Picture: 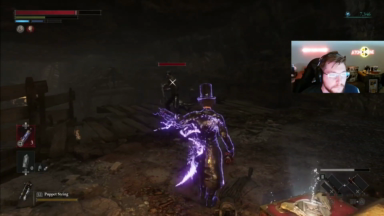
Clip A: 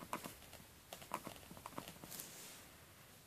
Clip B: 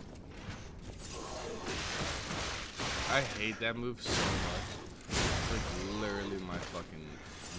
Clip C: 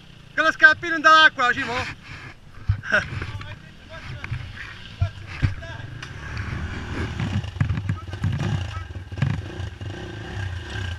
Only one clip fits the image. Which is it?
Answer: B